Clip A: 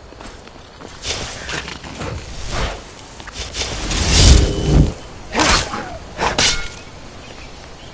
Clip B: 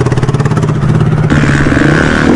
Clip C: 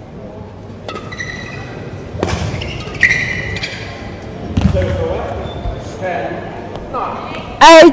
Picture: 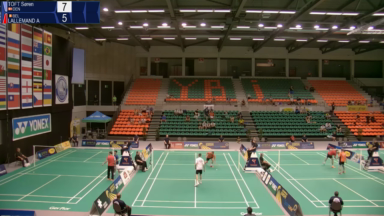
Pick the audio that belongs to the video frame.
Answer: C